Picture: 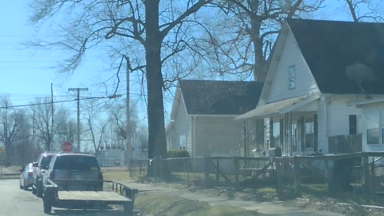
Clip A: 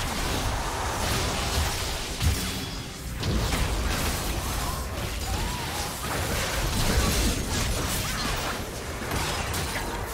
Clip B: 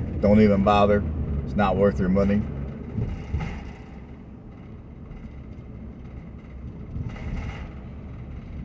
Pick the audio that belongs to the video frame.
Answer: B